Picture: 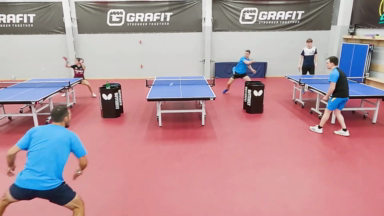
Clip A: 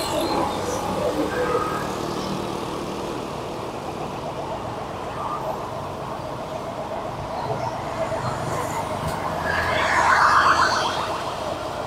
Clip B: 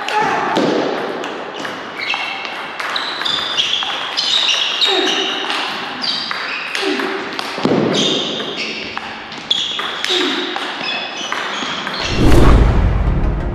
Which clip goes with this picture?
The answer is B